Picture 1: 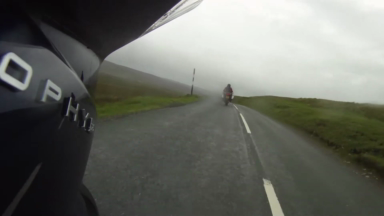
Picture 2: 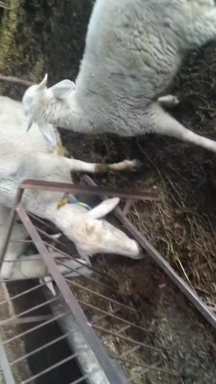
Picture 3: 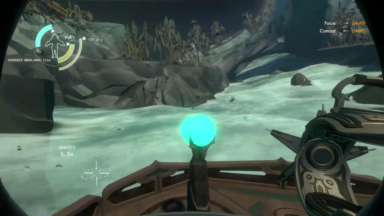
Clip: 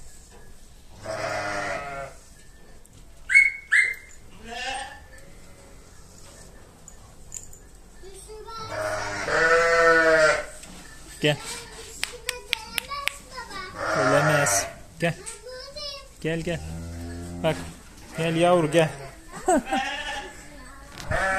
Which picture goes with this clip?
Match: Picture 2